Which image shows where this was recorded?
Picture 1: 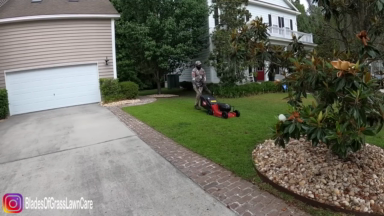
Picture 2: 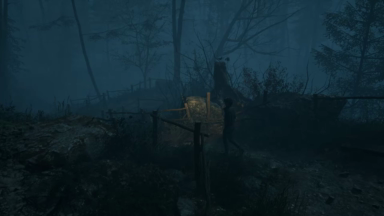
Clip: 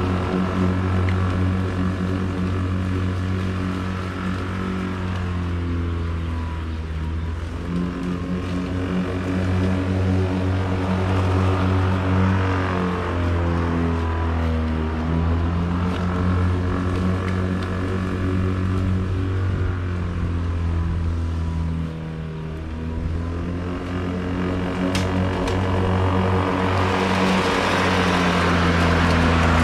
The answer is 1